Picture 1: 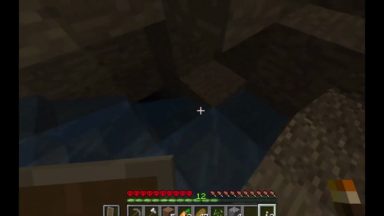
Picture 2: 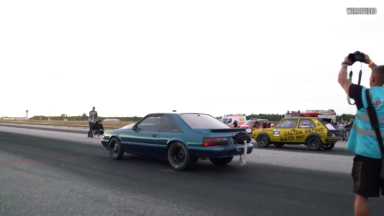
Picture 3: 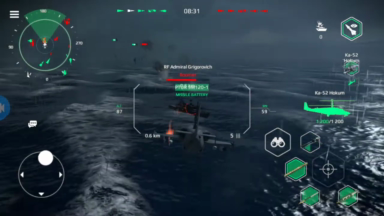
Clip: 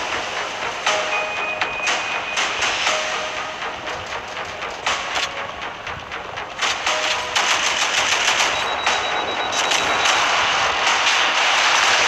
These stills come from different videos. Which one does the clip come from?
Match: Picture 3